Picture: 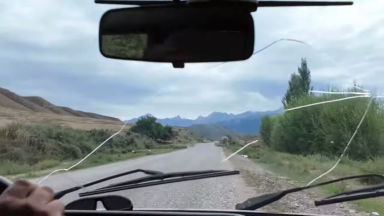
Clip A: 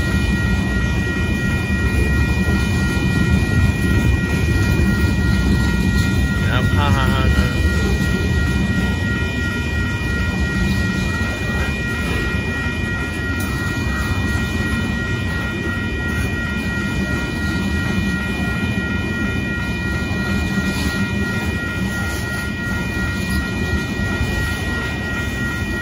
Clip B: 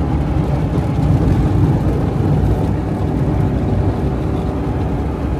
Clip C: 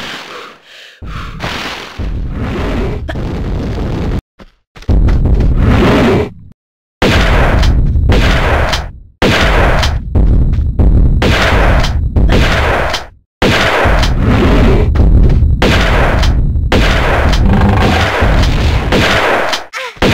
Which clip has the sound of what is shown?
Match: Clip B